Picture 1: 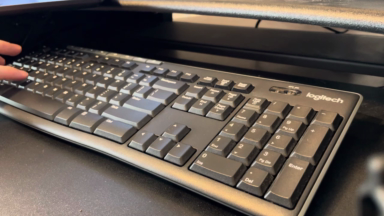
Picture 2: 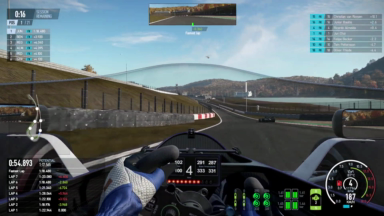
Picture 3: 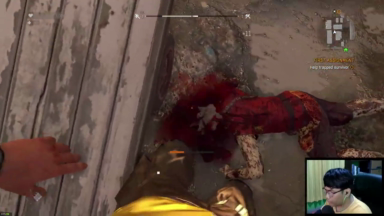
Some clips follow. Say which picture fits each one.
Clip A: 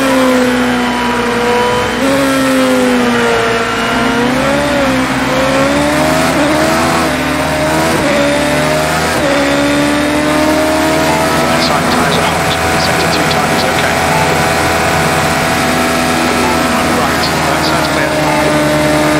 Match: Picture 2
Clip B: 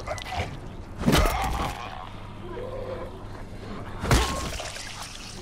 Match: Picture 3